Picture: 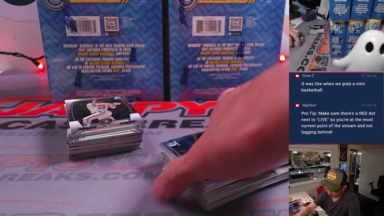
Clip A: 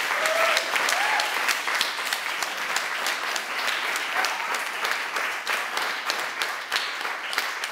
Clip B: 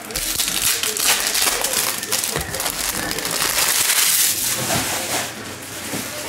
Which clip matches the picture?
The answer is B